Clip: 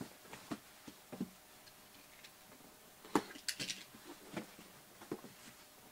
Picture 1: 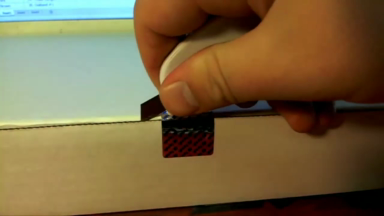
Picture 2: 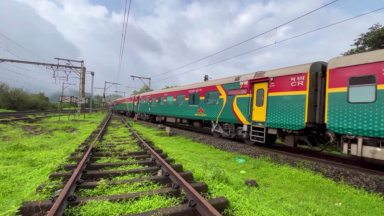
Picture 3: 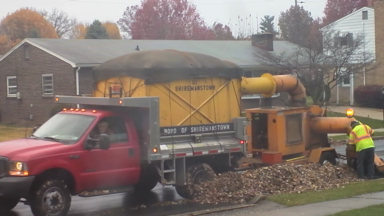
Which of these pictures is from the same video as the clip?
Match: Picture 1